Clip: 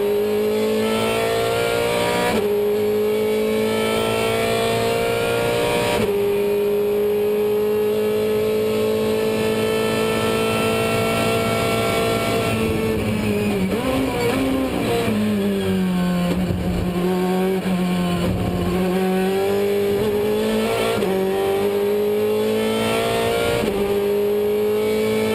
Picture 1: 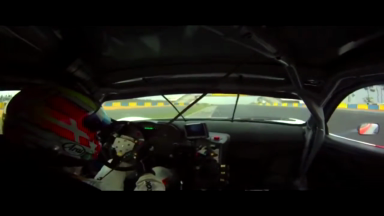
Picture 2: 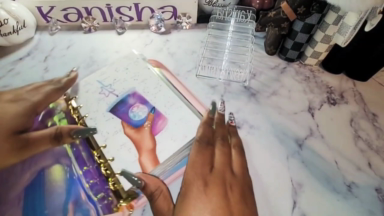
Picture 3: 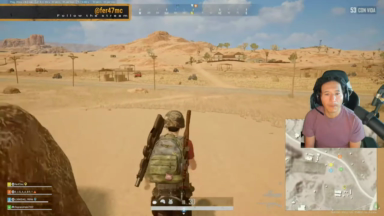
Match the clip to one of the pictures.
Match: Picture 1